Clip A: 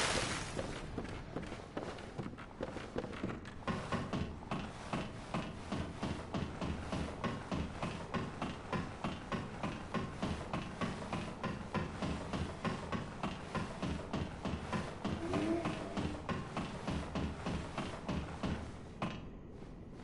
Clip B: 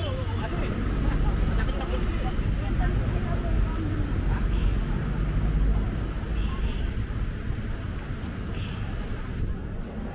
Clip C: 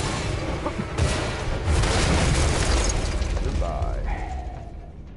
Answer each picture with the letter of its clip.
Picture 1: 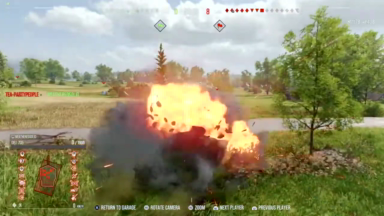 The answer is C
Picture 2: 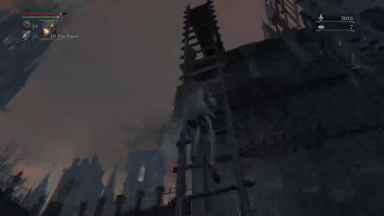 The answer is A